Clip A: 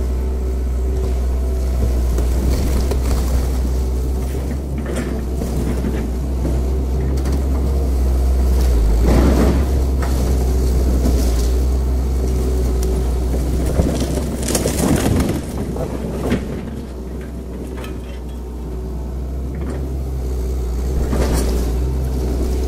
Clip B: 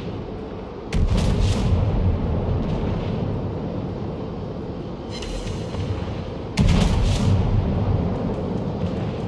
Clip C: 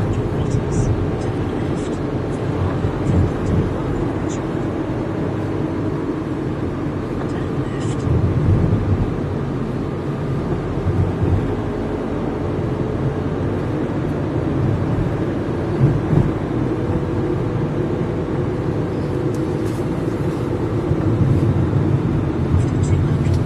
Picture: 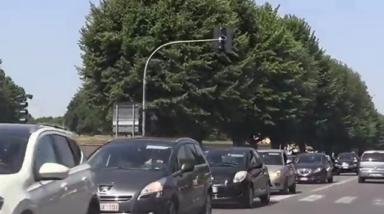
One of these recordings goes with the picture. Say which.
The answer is C